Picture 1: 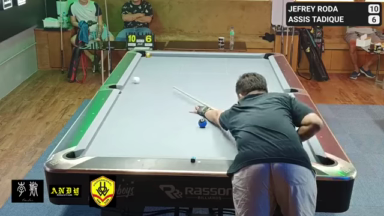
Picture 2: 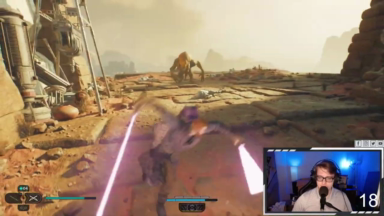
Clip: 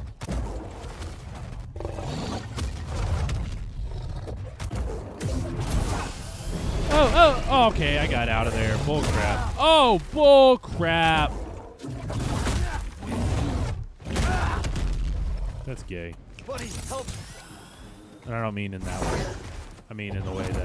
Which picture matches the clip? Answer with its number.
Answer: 2